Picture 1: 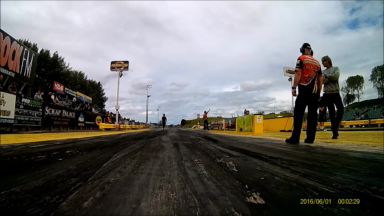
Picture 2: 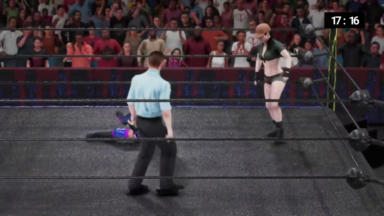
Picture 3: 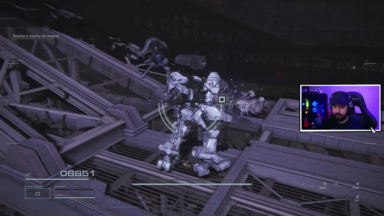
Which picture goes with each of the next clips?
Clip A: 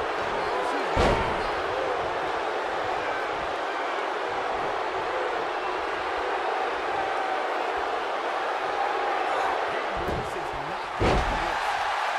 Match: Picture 2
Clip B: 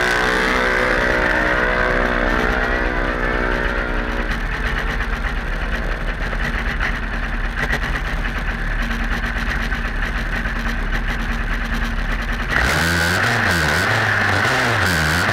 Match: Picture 1